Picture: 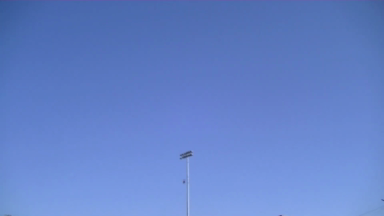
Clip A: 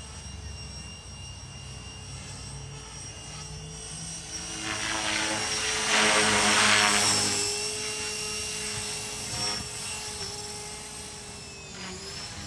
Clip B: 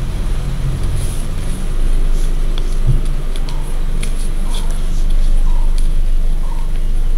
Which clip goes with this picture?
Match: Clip A